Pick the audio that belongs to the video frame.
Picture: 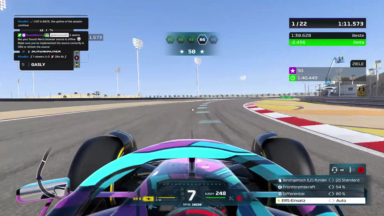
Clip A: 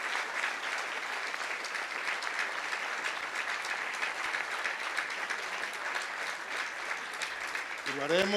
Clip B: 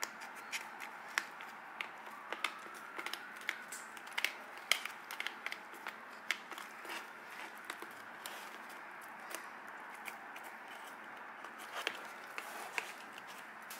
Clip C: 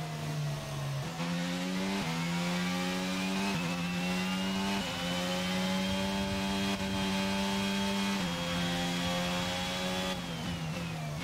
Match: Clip C